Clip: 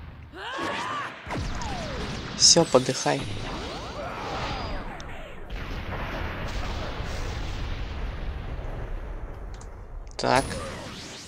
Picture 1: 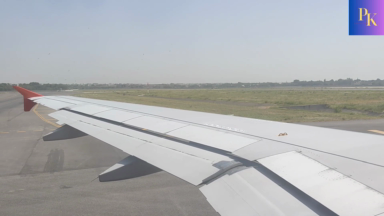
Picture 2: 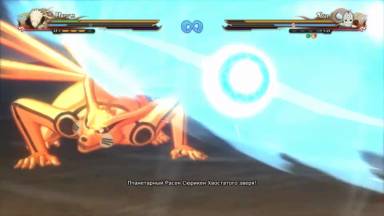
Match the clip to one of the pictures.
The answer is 2